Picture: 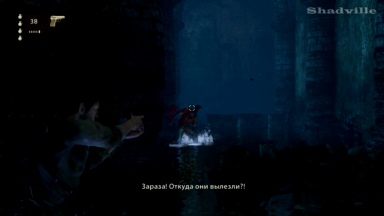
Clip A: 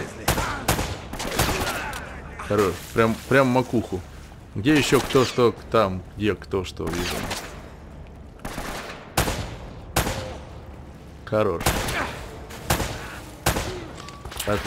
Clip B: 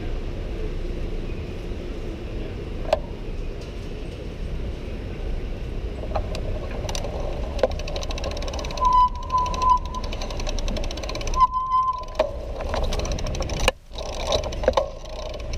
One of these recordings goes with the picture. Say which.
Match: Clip A